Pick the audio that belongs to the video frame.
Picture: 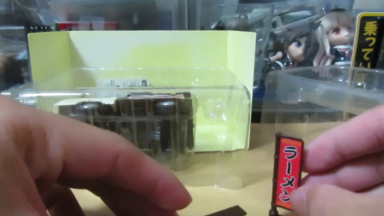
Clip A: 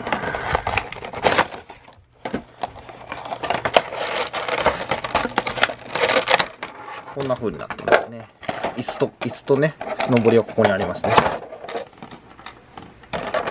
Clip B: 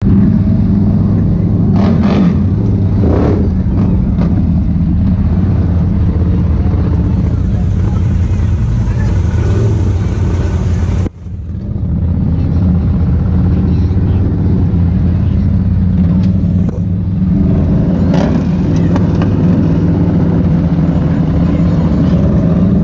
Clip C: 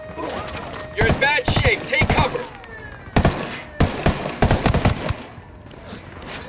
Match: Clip A